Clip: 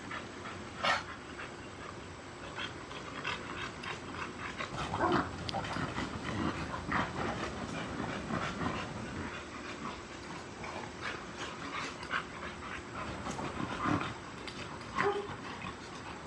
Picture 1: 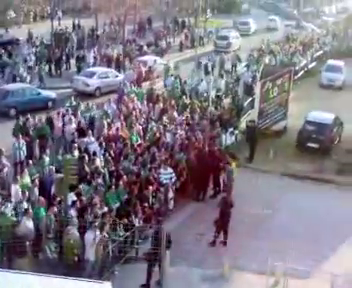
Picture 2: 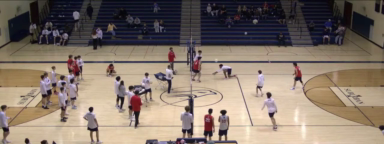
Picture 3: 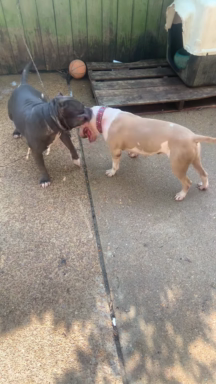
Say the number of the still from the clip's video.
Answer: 3